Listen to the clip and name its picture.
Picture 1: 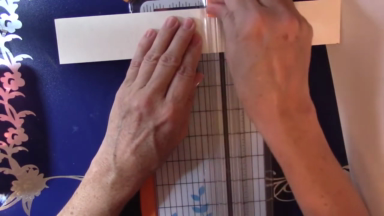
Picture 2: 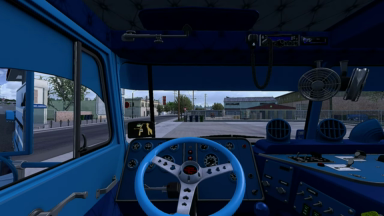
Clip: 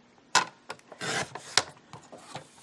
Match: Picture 1